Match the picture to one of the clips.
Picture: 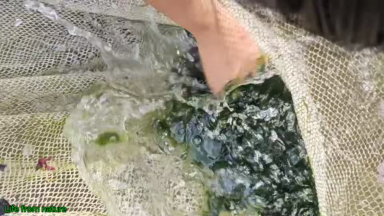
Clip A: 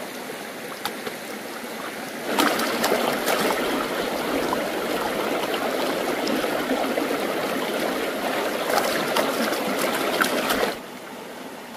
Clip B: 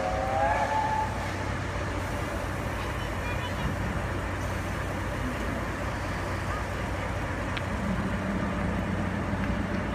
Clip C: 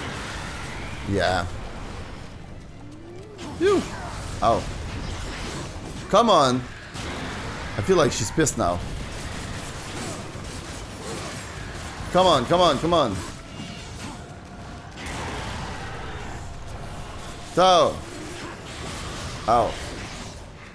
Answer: A